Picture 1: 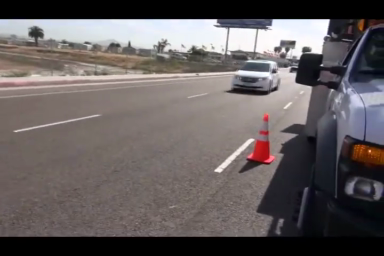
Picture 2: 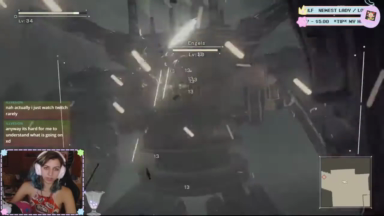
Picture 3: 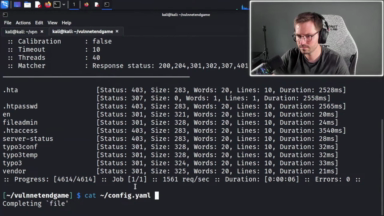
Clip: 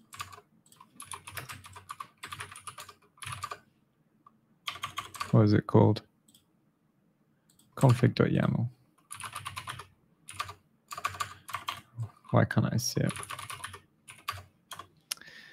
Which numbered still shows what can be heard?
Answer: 3